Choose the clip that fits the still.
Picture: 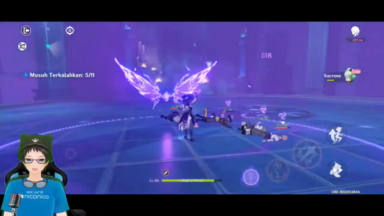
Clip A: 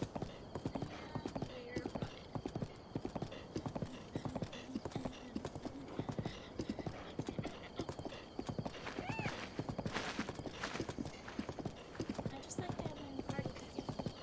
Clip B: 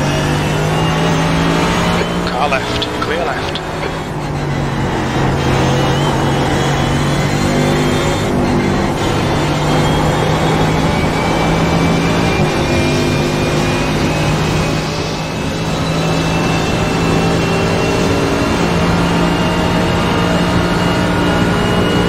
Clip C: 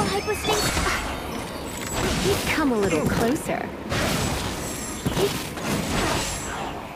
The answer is C